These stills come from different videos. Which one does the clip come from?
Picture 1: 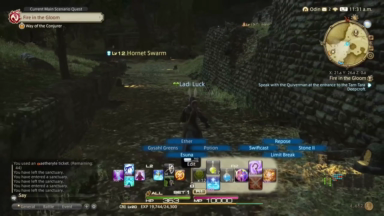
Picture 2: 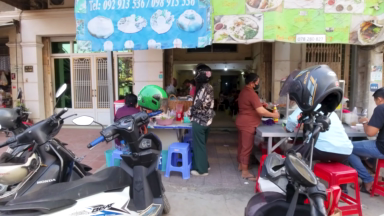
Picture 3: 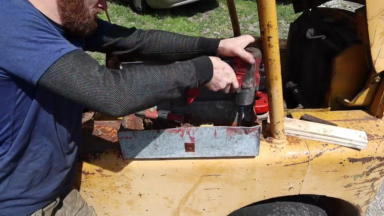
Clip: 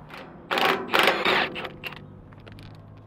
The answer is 3